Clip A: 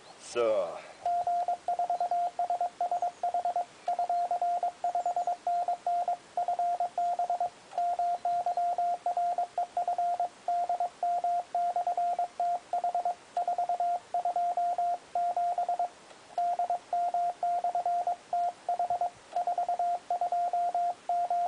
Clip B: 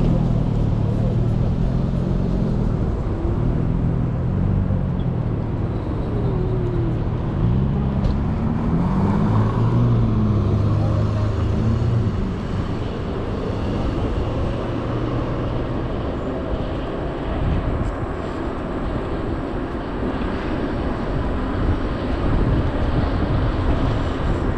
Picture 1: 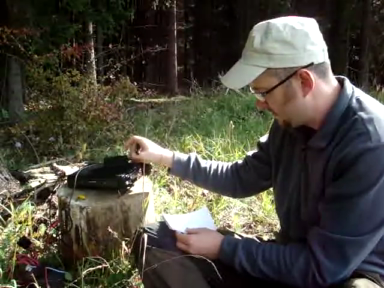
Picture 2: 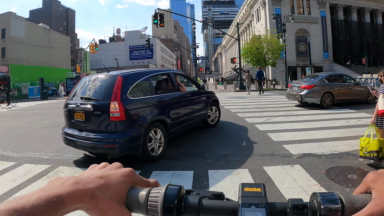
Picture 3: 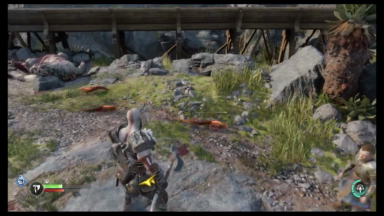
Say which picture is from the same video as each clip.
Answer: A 1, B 2